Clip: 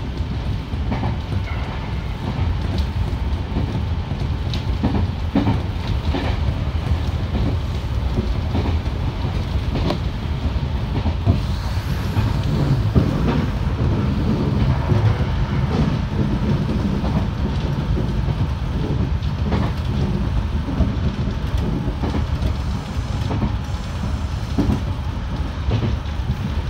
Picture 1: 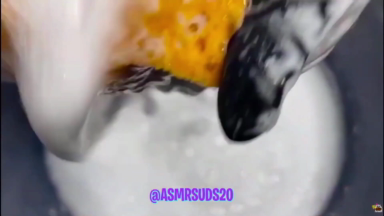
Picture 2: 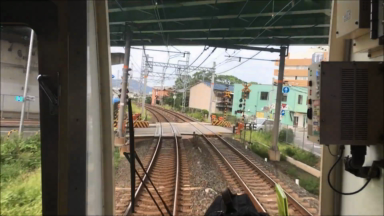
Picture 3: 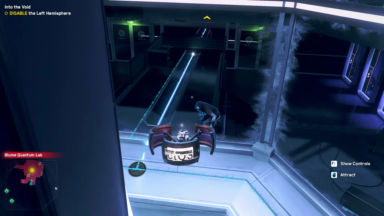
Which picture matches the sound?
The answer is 2